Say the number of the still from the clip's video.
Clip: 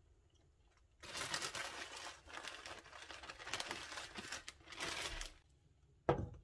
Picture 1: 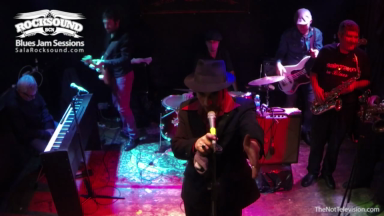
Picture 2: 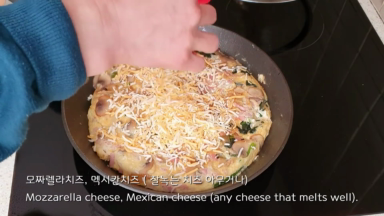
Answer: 2